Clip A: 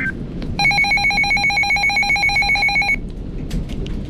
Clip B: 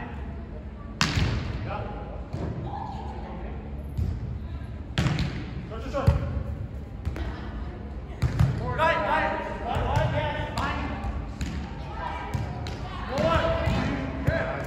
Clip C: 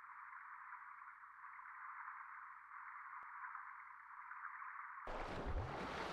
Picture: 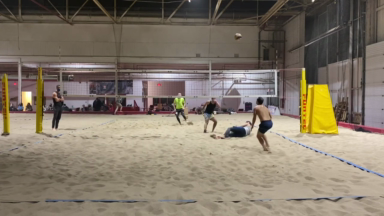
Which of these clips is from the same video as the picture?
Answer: B